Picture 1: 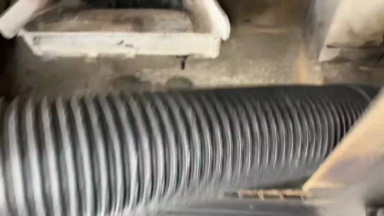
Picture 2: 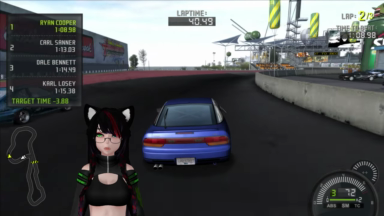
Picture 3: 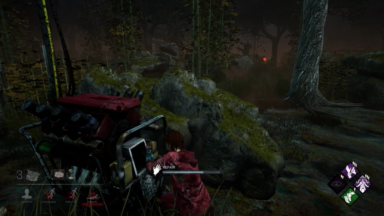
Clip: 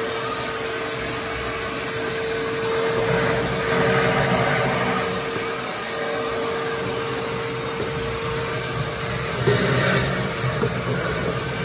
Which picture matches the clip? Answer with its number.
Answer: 1